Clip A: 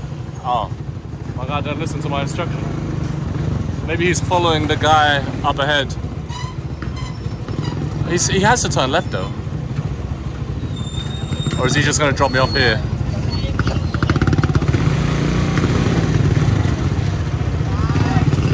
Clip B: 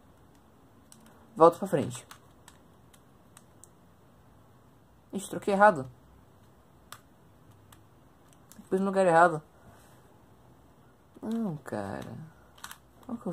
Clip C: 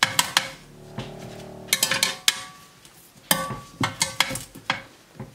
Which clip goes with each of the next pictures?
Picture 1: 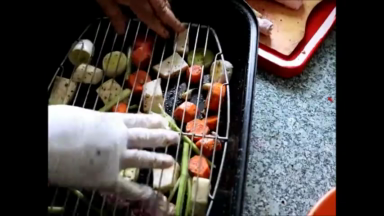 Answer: C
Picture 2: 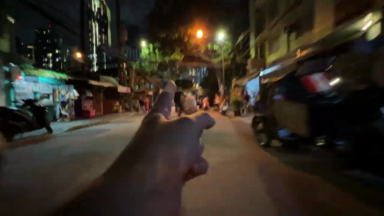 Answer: A